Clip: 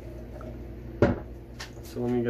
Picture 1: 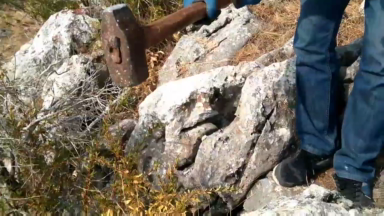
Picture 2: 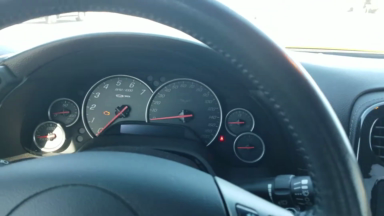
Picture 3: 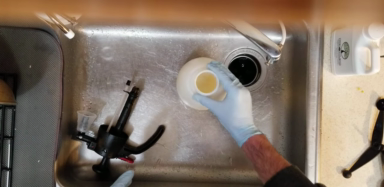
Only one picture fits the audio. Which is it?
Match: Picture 3